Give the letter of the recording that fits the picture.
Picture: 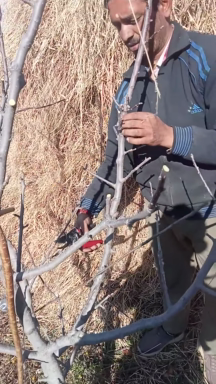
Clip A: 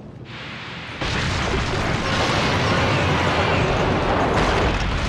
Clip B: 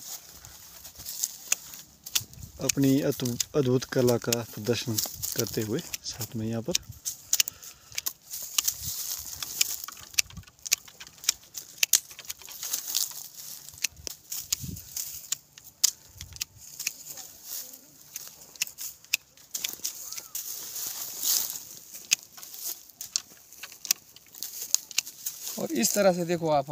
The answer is B